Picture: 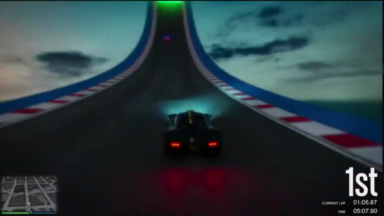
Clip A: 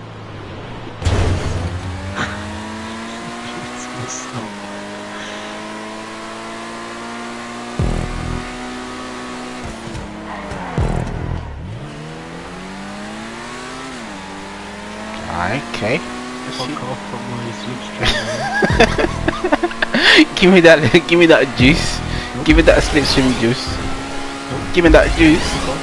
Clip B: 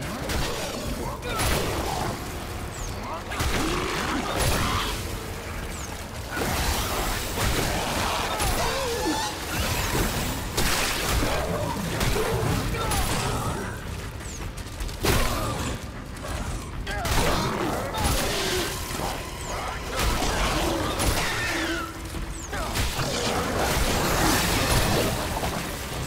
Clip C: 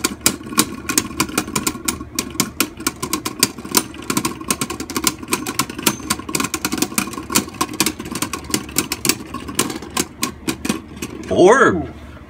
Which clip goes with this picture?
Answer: A